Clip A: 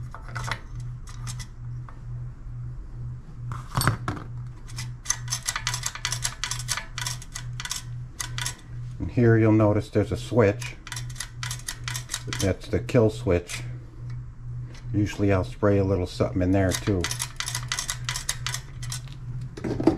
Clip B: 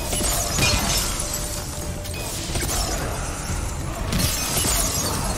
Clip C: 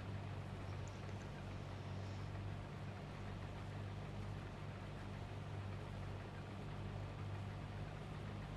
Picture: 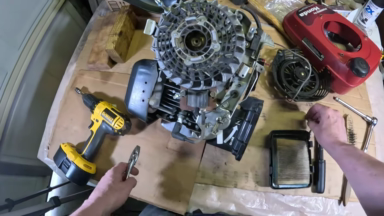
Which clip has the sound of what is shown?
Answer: A